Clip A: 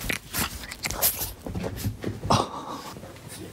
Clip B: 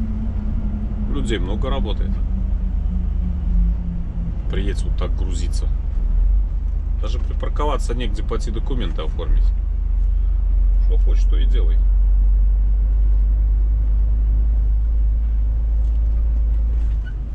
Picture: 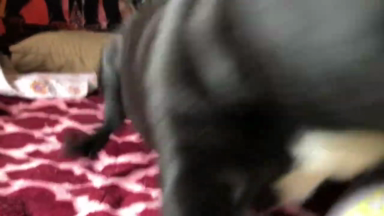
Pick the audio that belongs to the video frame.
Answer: A